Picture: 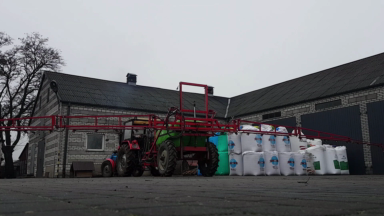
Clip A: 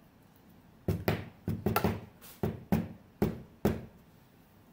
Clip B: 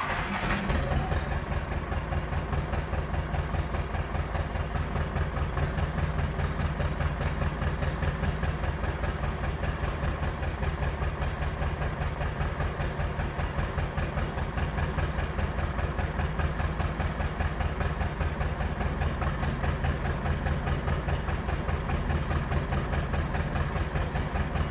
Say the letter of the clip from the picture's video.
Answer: B